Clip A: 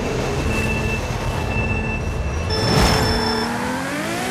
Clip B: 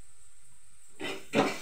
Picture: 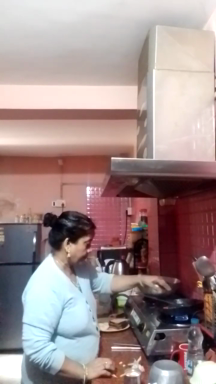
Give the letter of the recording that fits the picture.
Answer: B